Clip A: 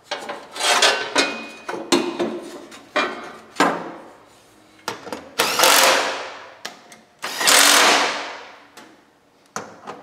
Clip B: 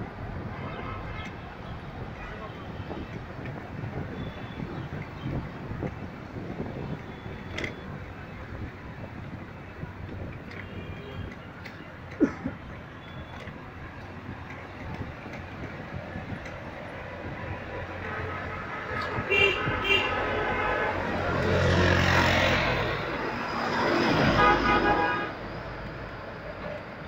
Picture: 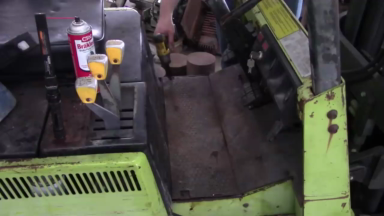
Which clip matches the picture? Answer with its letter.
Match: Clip A